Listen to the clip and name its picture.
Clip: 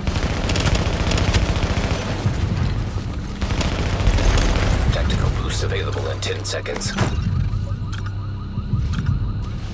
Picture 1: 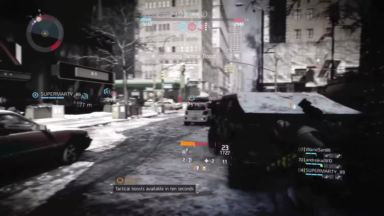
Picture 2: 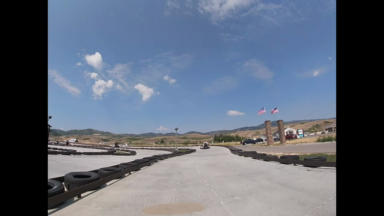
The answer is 1